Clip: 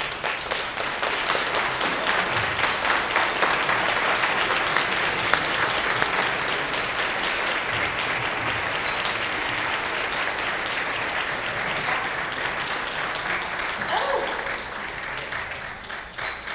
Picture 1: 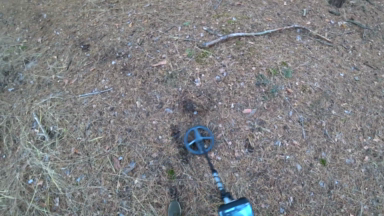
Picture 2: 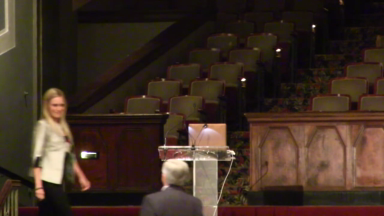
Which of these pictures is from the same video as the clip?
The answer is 2